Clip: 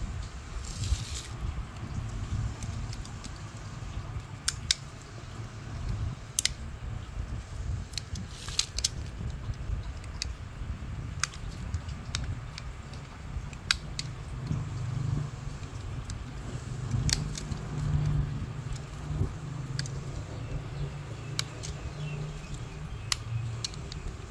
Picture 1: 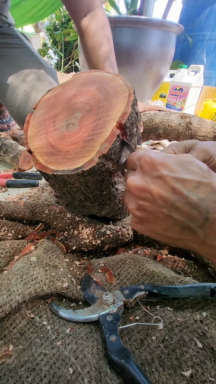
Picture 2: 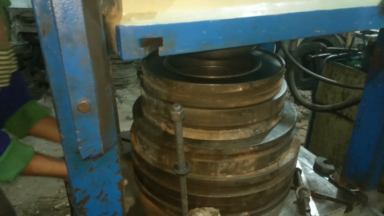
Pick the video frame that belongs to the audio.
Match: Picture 1